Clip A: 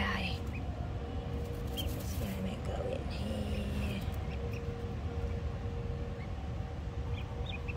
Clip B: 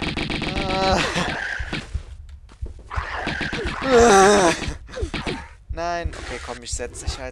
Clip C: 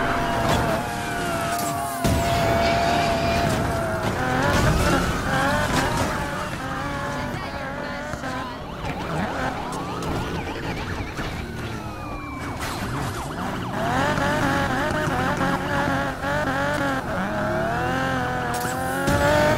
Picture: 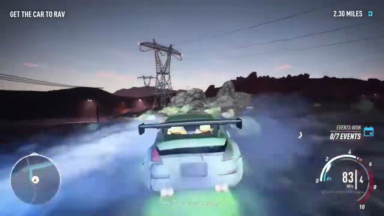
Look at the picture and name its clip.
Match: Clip C